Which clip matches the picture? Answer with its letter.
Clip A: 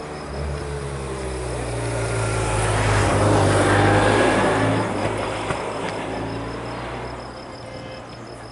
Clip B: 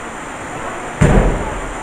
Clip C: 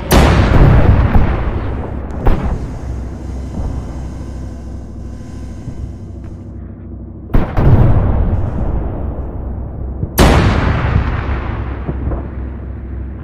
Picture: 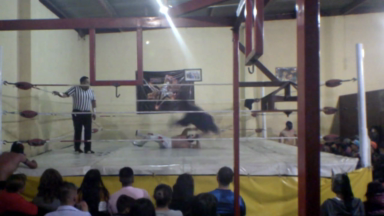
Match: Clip B